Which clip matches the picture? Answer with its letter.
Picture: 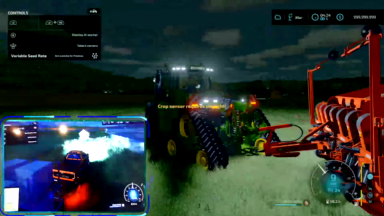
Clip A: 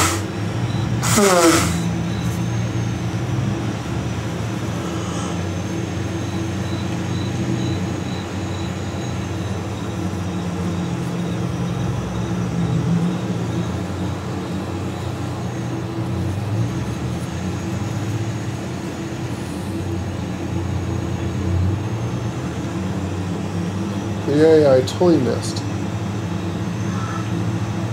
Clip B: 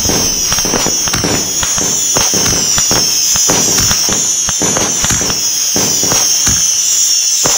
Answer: A